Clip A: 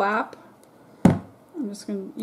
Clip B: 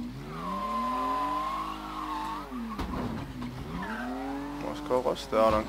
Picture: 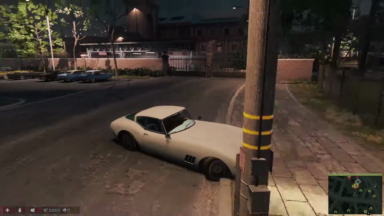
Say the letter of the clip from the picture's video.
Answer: B